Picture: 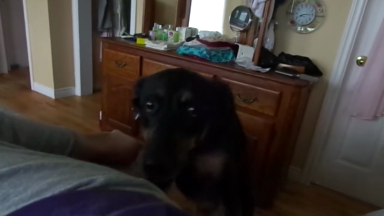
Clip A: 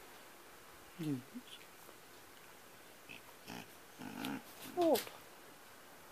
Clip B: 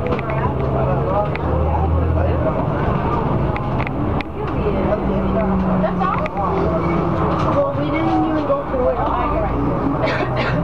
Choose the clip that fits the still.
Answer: A